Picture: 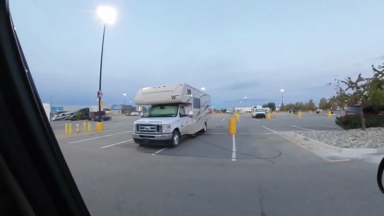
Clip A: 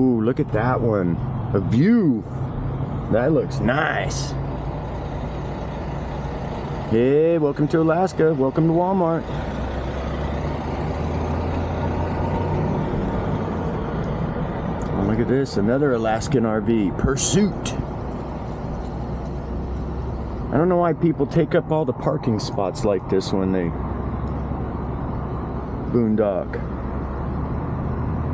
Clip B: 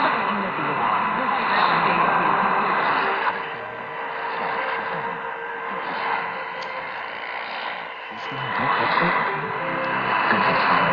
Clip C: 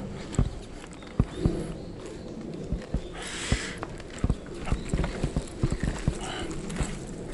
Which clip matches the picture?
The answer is A